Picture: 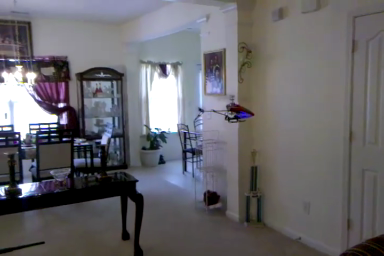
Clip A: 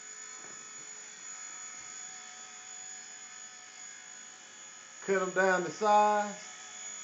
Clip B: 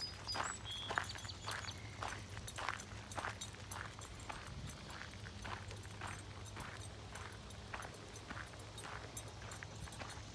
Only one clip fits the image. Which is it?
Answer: A